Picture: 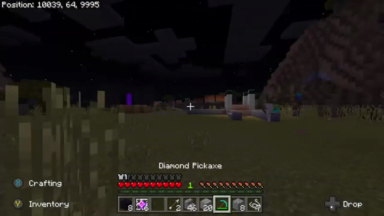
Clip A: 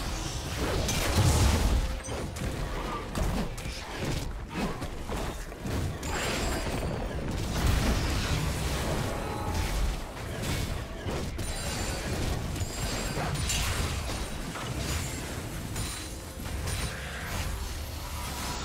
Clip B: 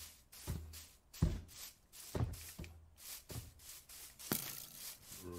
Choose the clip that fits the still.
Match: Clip B